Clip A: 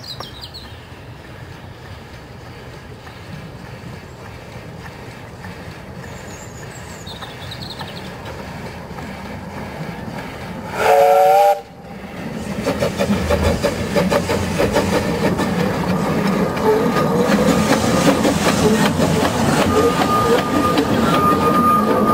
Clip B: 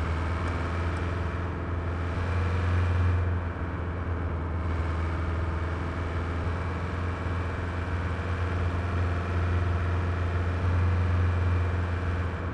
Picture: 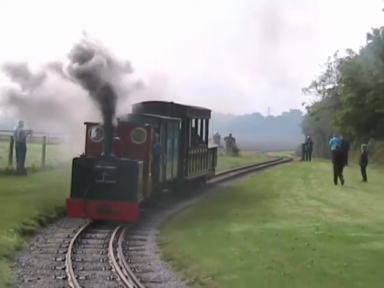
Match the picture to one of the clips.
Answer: A